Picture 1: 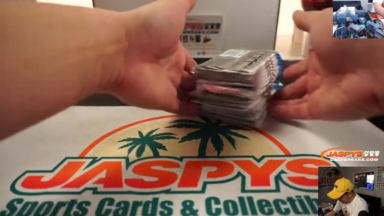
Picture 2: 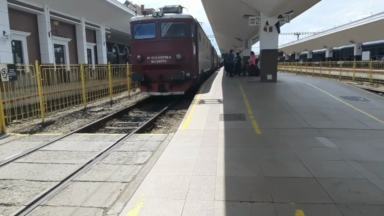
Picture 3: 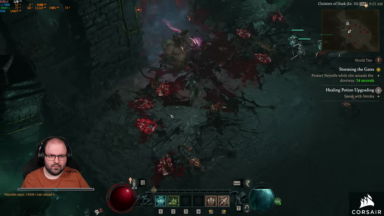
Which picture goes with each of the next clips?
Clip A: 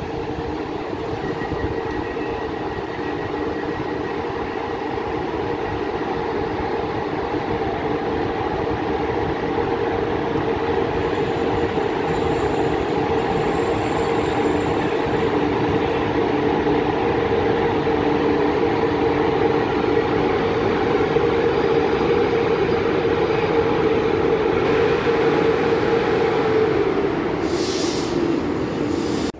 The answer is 2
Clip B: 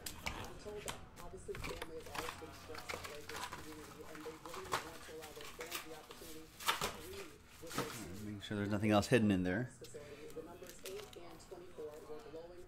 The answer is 1